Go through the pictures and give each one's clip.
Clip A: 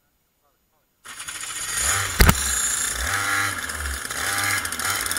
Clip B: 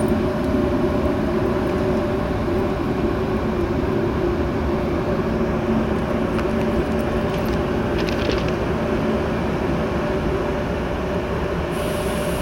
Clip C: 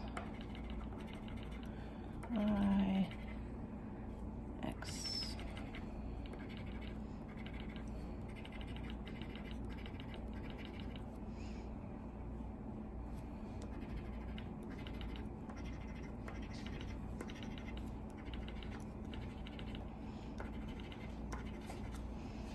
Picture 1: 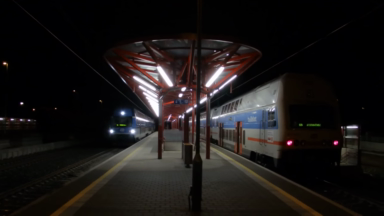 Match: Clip B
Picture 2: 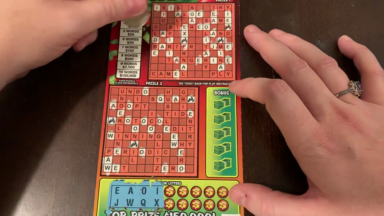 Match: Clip C